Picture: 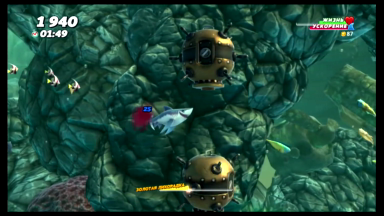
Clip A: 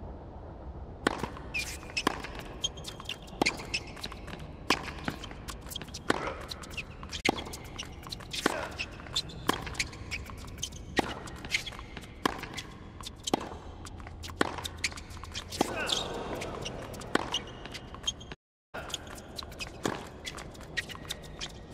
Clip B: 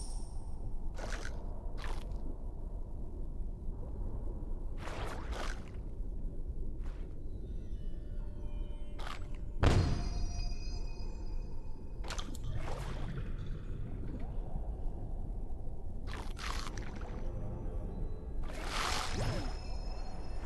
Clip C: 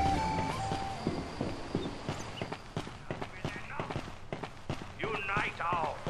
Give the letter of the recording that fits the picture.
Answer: B